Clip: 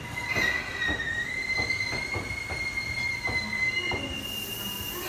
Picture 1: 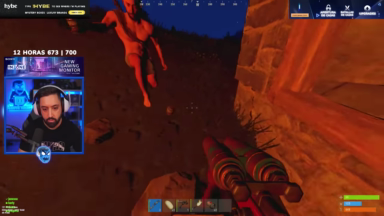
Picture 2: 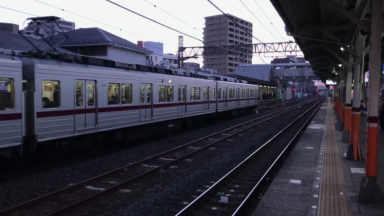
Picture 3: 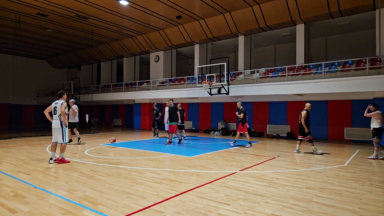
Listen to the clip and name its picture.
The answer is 2